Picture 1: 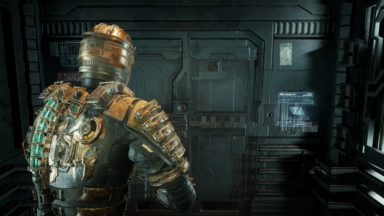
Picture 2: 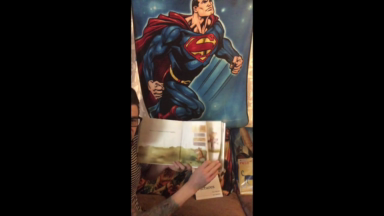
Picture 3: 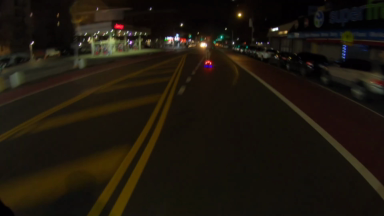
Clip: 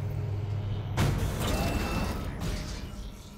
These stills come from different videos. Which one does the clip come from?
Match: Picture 1